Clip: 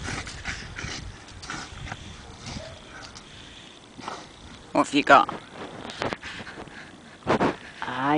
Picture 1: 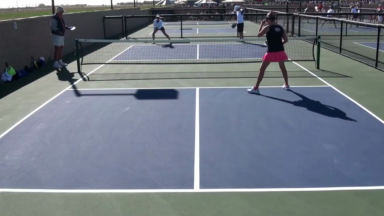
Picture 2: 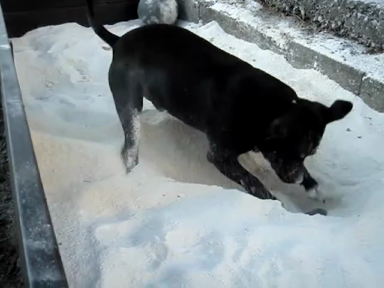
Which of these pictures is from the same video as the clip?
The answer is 2